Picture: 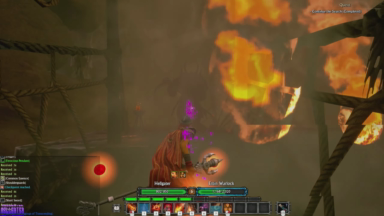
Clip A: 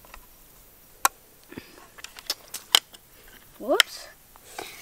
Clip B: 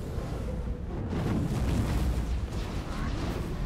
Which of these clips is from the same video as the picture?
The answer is B